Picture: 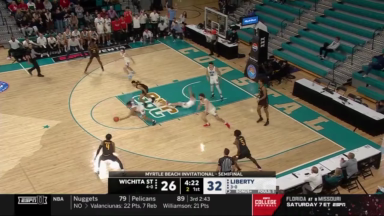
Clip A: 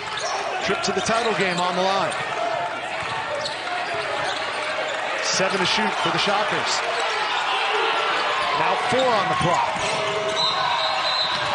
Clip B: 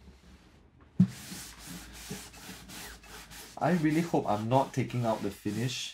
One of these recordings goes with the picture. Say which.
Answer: A